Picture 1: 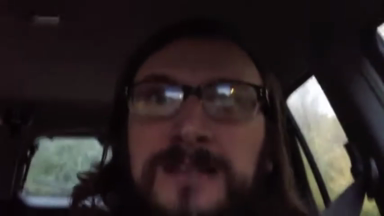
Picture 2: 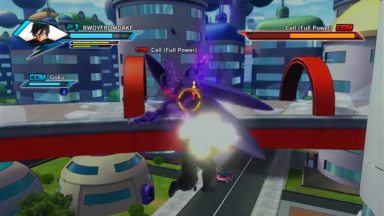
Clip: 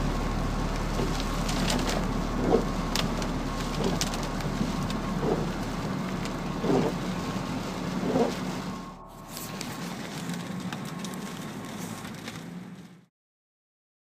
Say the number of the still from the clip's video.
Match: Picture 1